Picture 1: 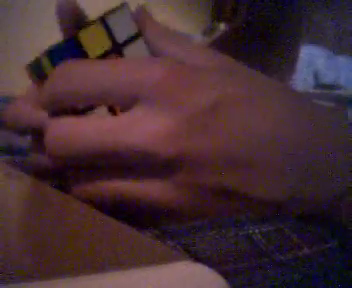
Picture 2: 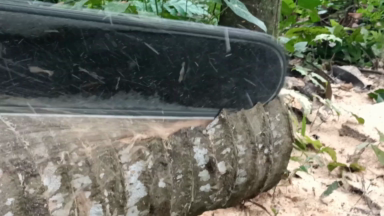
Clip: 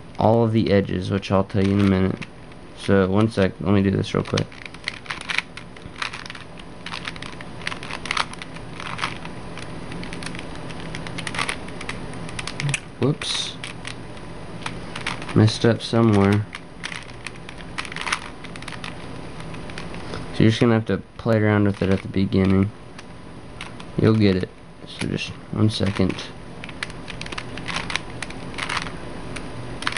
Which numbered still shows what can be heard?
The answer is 1